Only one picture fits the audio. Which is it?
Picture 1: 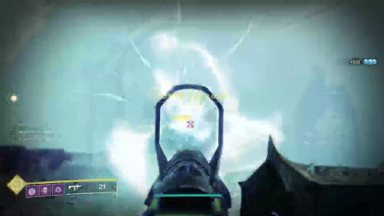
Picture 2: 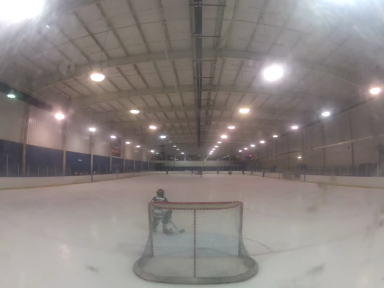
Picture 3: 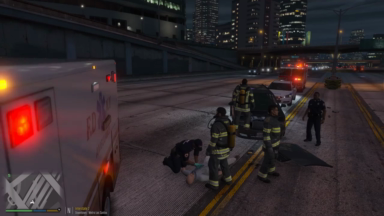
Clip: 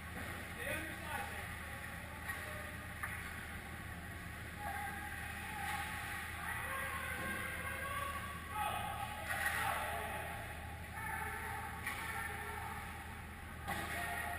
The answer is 2